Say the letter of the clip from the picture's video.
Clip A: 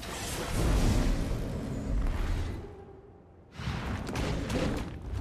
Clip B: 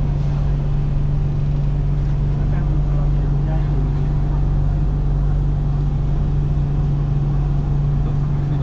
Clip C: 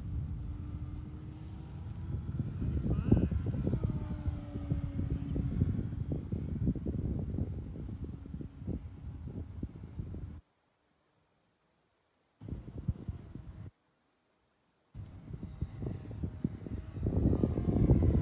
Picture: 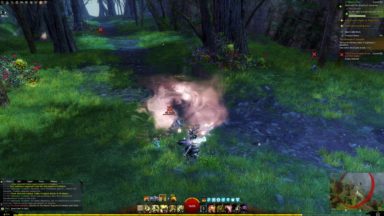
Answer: A